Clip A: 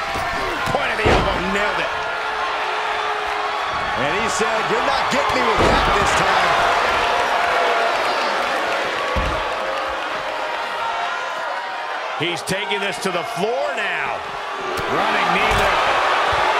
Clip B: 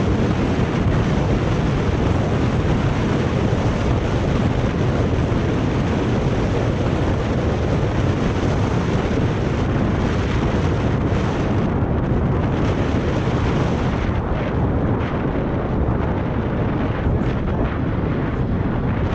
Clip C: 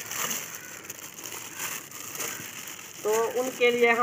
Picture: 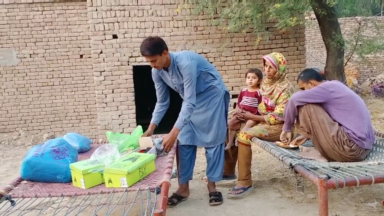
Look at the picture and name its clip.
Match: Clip C